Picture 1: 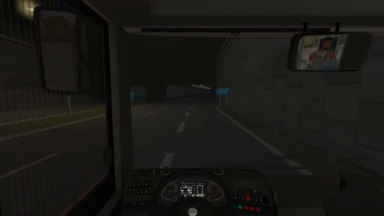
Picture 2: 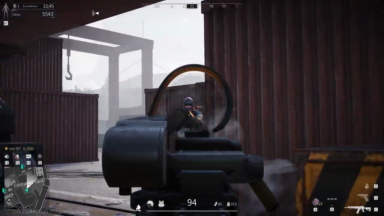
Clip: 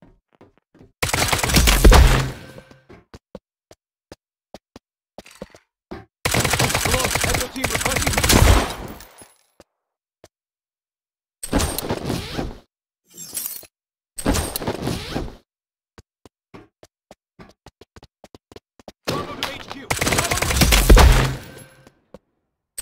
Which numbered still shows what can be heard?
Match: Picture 2